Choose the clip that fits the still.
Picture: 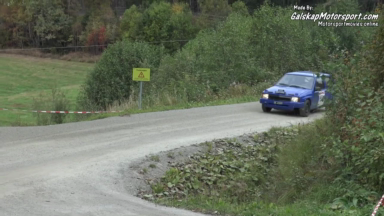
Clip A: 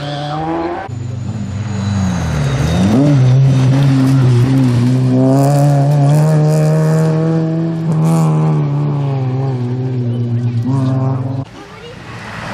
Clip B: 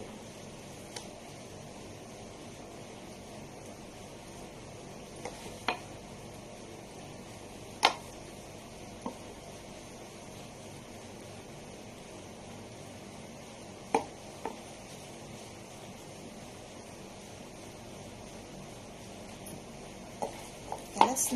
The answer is A